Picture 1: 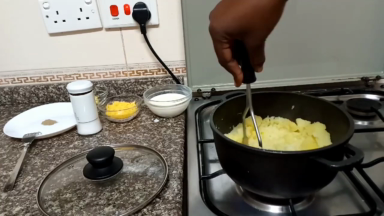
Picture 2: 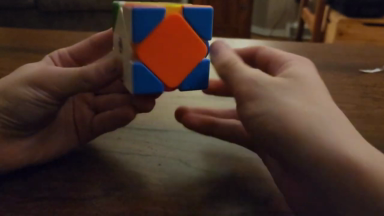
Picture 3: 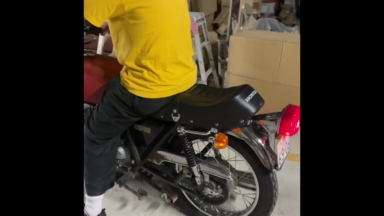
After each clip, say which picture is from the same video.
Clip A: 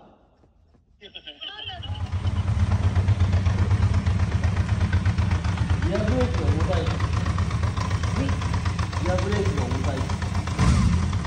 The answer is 3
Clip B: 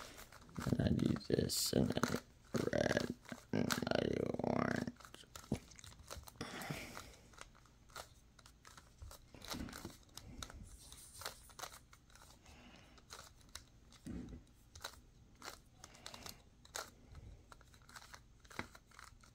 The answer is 2